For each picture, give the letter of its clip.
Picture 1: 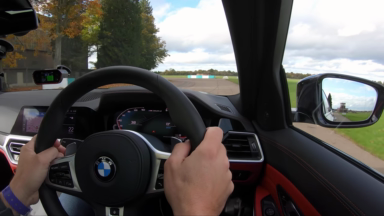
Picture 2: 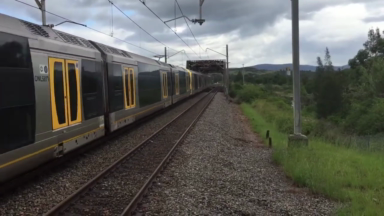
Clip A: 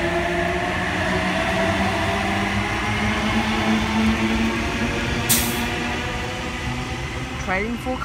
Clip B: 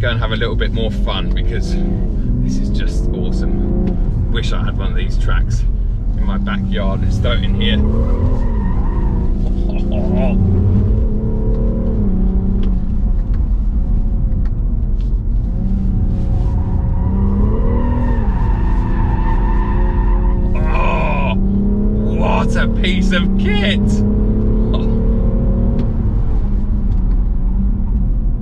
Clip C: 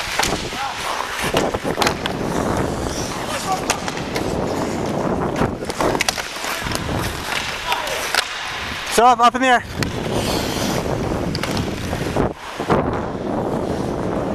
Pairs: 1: B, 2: A